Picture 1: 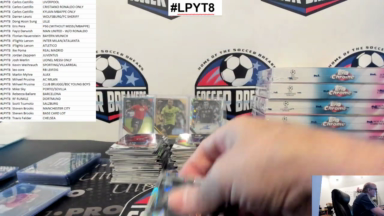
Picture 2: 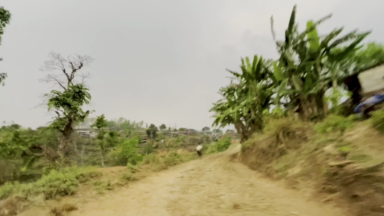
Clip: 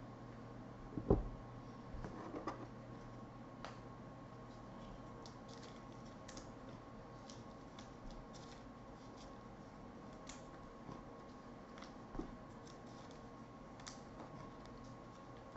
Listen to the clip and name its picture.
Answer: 1